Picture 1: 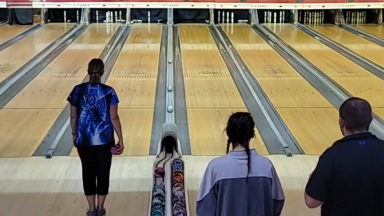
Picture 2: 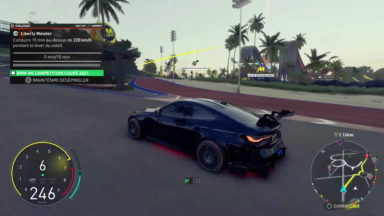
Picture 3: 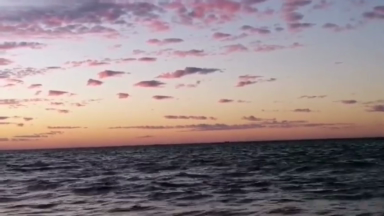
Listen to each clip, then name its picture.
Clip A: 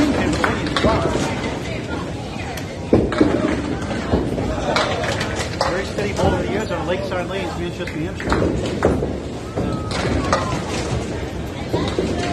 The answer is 1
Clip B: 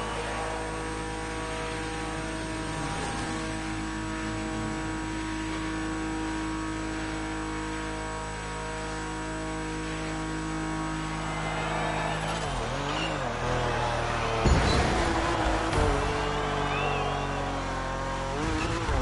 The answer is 2